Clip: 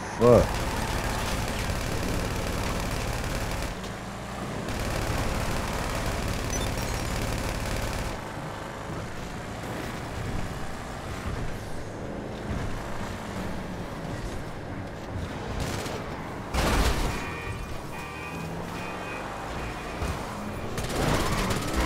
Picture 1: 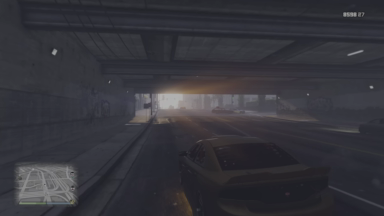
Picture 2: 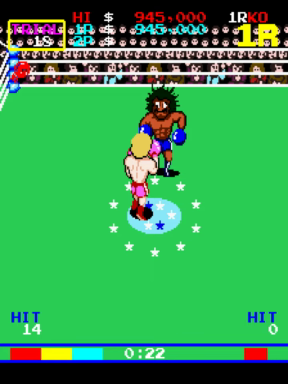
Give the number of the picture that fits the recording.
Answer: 1